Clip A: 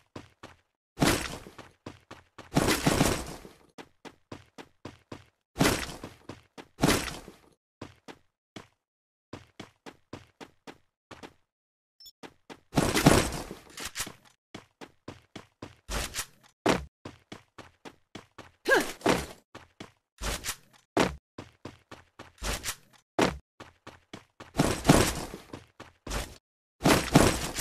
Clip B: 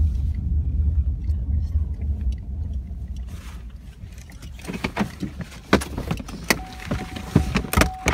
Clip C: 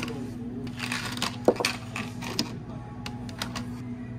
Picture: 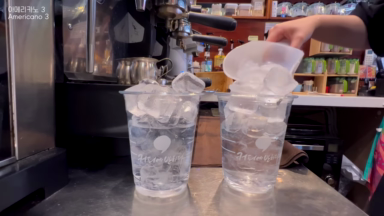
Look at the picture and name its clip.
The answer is C